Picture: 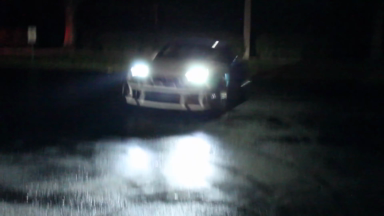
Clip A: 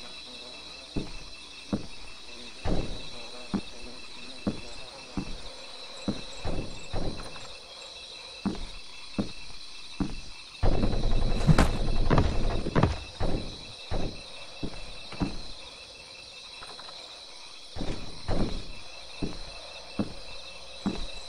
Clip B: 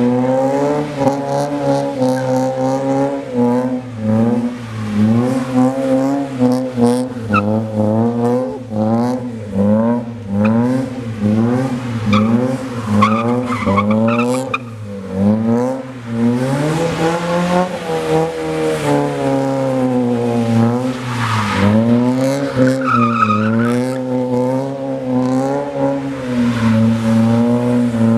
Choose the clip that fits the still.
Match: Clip B